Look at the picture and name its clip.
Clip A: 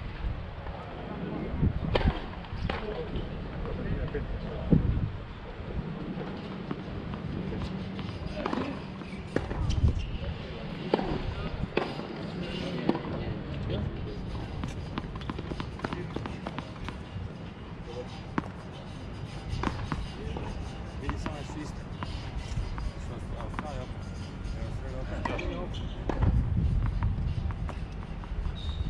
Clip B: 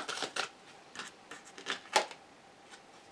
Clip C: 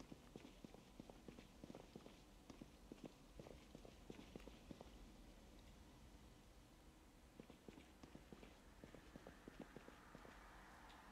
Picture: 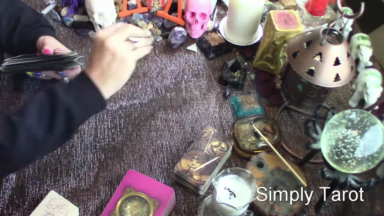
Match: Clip B